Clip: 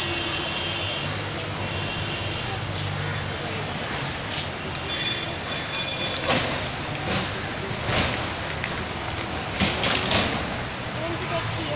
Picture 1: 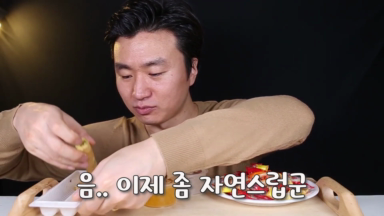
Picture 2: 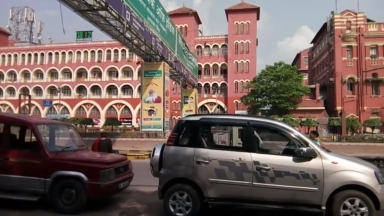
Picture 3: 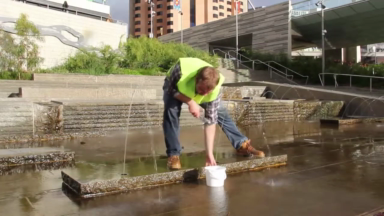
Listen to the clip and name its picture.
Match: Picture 2